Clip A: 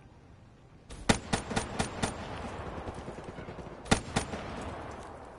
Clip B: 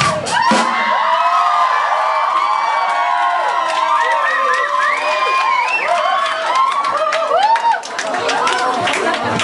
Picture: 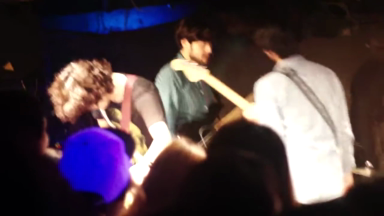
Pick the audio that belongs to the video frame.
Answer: B